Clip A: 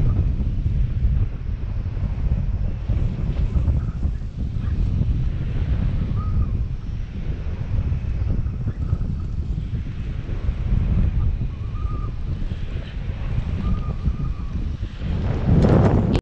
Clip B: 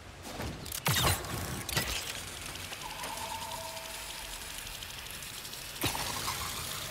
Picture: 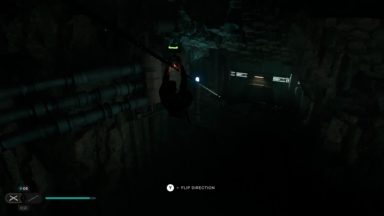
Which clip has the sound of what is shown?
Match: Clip B